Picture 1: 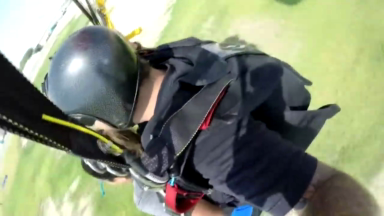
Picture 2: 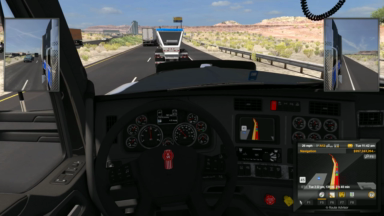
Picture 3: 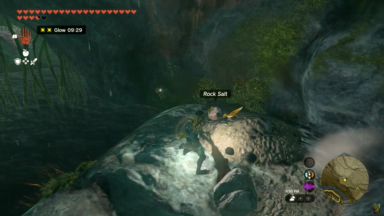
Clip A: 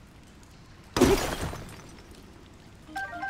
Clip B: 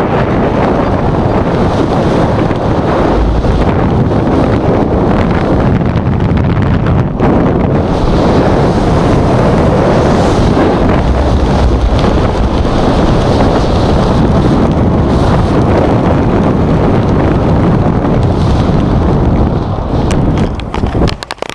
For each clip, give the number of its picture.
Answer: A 3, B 1